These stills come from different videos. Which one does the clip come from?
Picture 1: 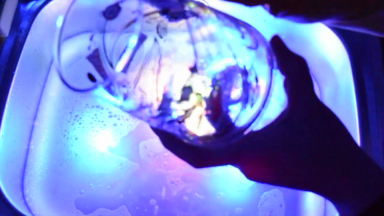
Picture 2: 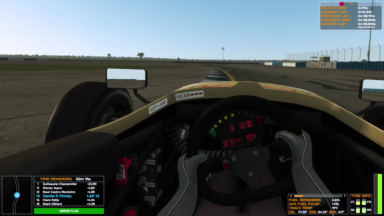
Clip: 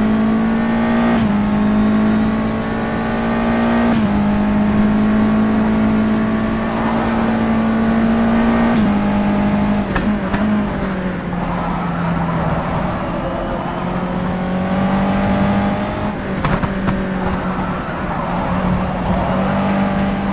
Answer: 2